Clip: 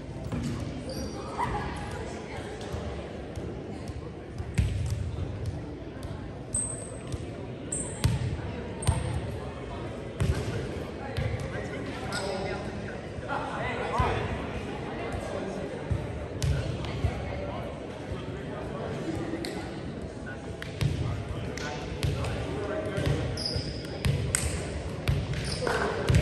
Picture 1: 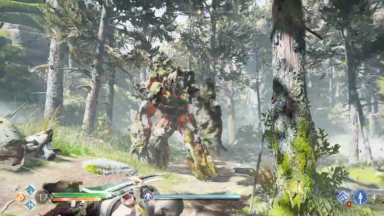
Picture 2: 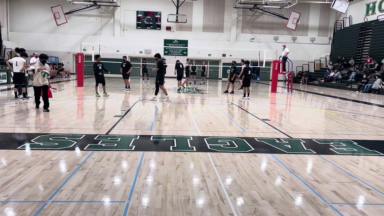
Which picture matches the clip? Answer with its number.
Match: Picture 2